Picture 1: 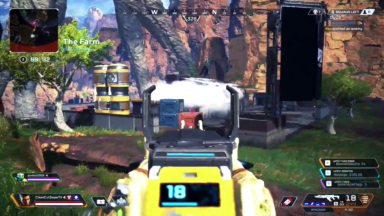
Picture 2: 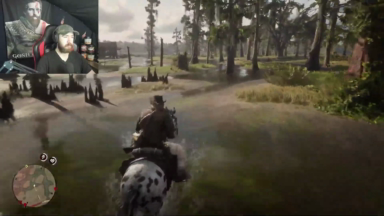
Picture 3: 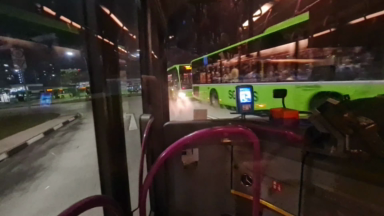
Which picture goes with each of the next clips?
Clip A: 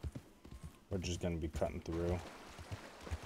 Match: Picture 2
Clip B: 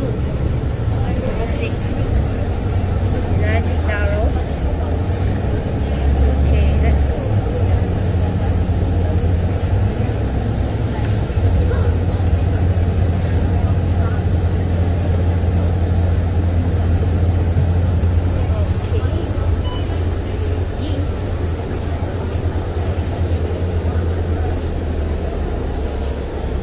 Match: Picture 3